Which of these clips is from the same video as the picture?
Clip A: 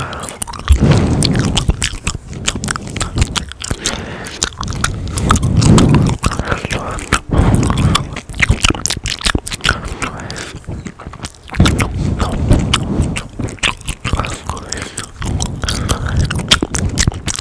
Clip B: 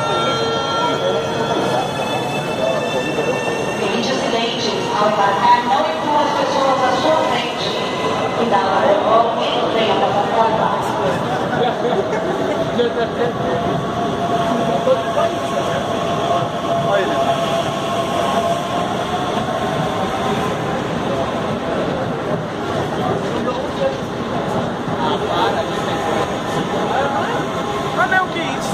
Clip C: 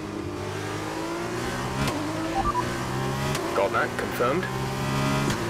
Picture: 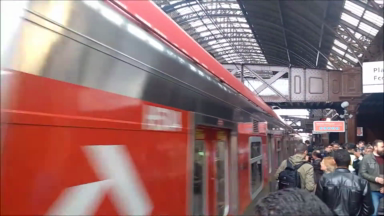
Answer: B